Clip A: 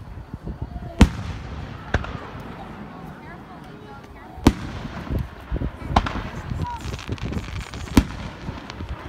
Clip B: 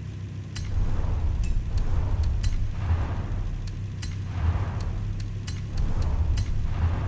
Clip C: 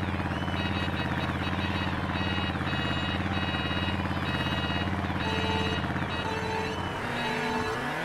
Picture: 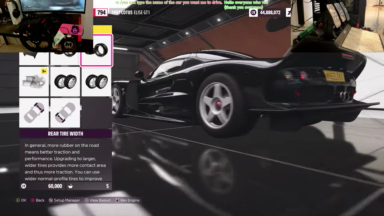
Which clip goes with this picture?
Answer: B